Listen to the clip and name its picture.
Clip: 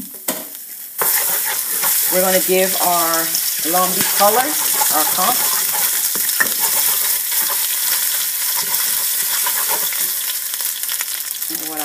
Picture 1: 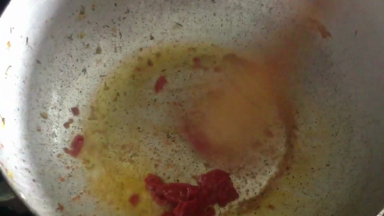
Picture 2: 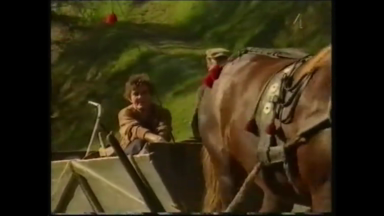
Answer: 1